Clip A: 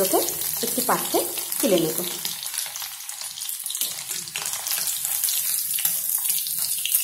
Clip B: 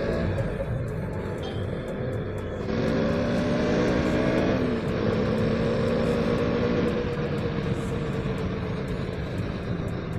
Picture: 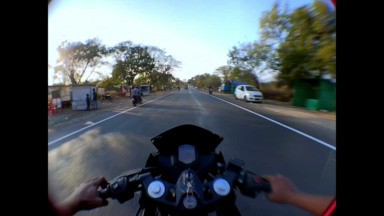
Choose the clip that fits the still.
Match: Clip B